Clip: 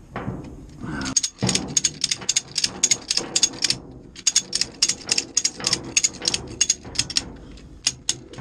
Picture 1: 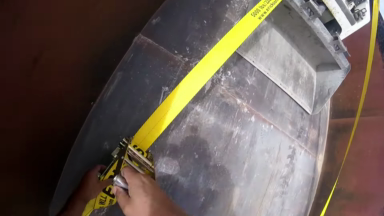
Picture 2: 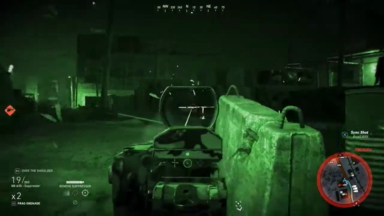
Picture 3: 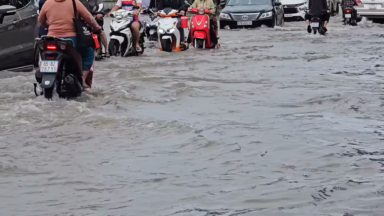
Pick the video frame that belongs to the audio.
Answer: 1